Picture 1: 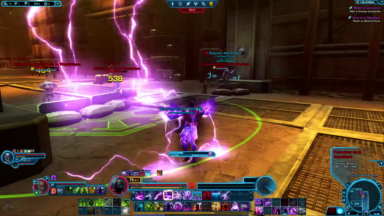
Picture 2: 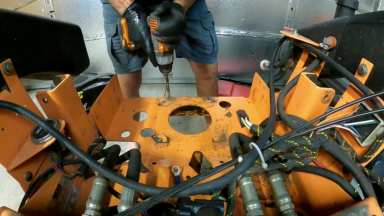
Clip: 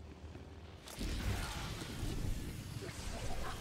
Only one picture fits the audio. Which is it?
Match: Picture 1